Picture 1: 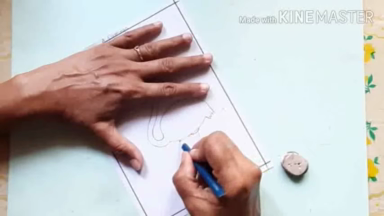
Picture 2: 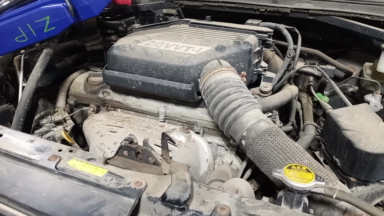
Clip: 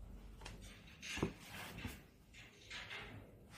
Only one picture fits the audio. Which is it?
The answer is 1